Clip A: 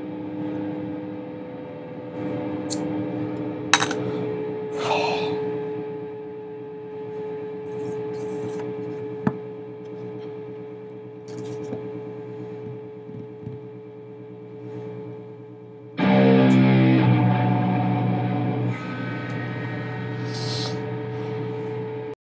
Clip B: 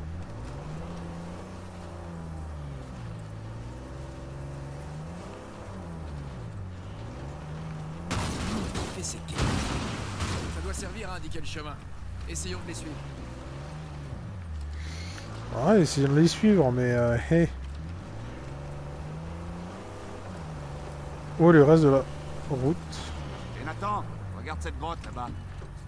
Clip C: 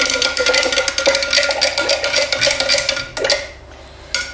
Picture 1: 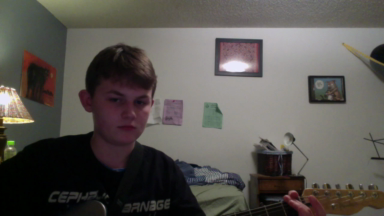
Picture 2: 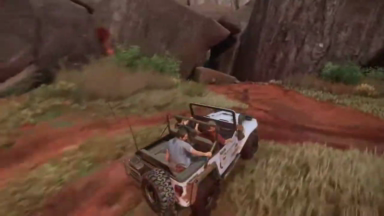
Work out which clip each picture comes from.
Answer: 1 A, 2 B